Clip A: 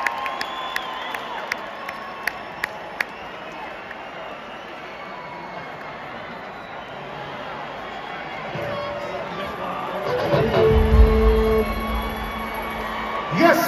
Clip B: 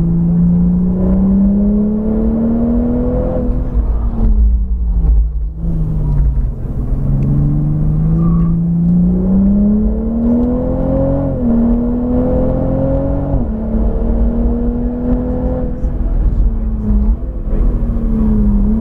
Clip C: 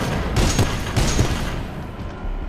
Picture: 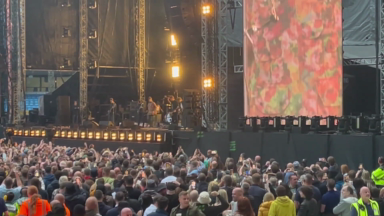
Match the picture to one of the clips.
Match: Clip A